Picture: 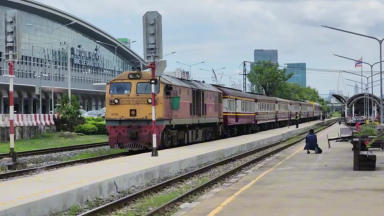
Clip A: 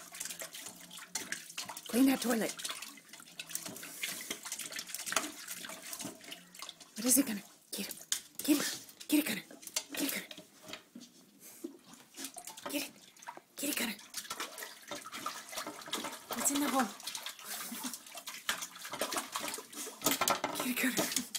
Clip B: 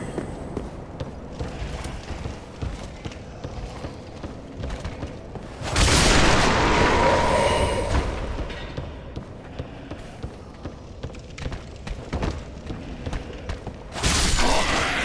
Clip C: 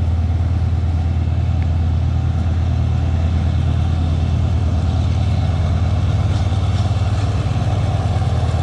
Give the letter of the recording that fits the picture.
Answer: C